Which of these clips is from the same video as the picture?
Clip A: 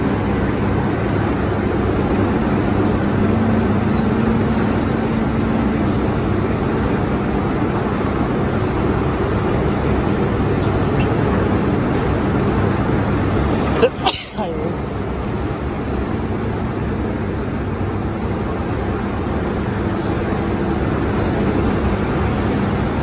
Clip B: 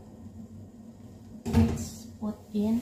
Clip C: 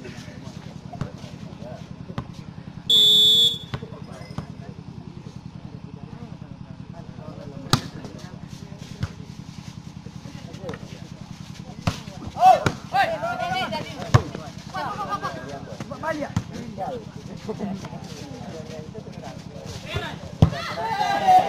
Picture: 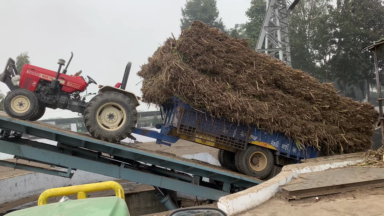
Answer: A